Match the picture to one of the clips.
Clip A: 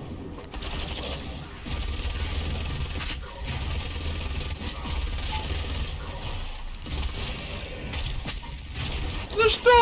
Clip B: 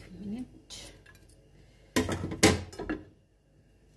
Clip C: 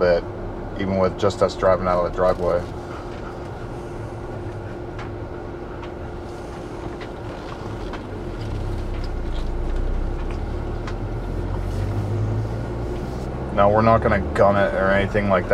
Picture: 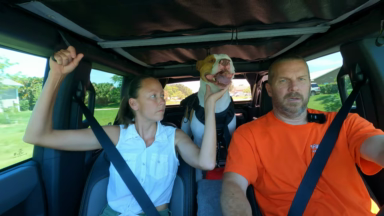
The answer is C